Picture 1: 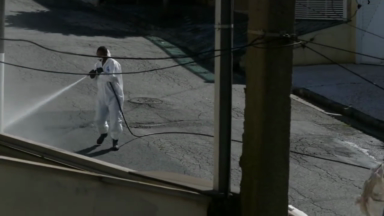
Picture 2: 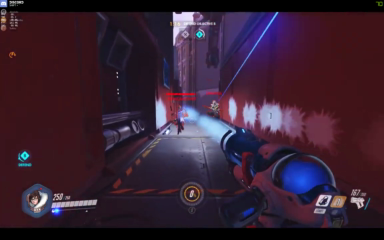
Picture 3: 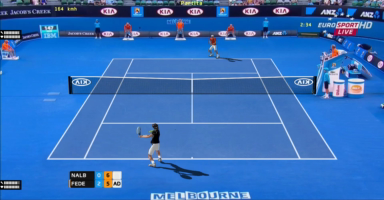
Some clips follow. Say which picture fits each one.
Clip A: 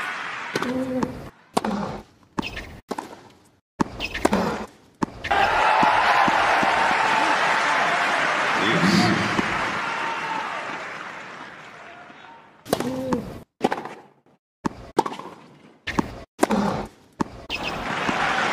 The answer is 3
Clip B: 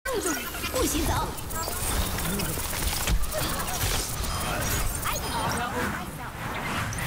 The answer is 2